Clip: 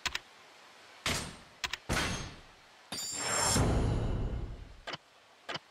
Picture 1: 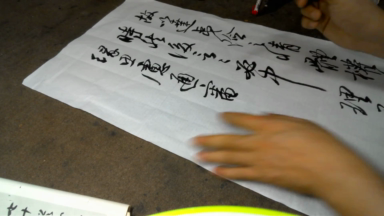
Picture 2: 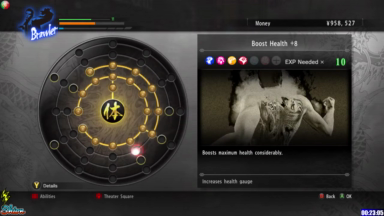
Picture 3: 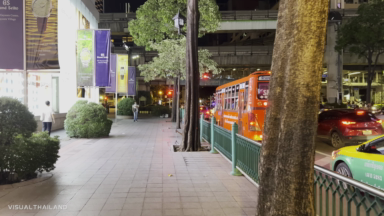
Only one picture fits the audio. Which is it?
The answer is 2